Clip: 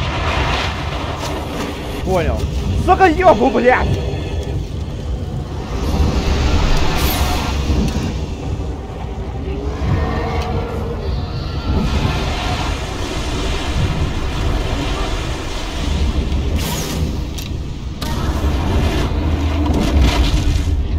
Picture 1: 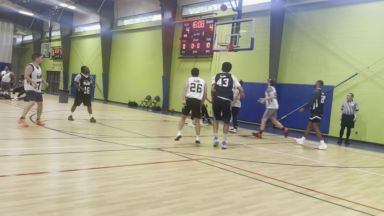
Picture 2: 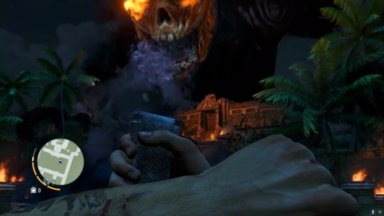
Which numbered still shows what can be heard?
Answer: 2